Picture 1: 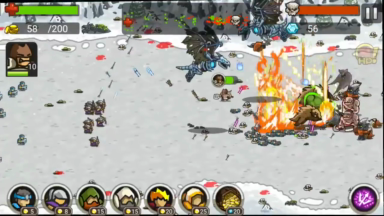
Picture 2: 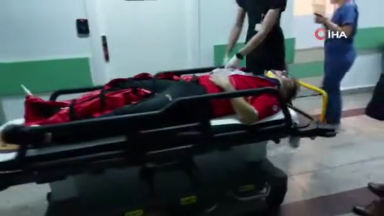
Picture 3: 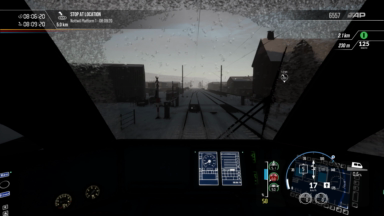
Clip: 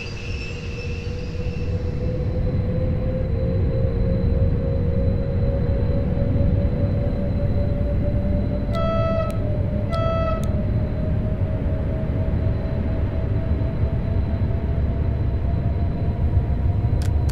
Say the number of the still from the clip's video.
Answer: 3